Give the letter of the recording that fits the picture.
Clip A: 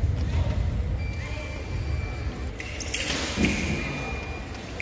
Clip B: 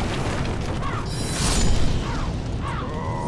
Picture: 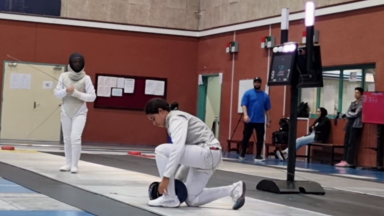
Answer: A